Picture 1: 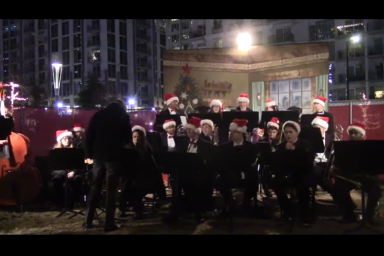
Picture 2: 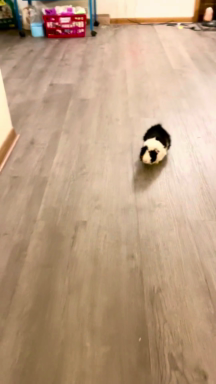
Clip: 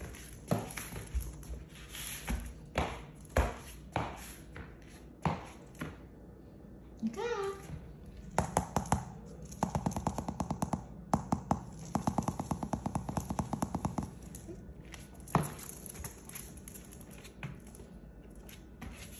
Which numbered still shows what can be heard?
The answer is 2